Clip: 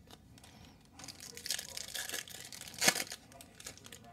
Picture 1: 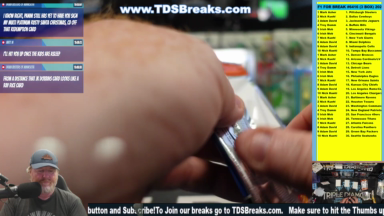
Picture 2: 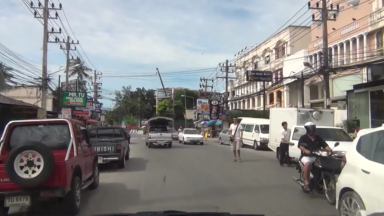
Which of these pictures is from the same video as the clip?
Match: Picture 1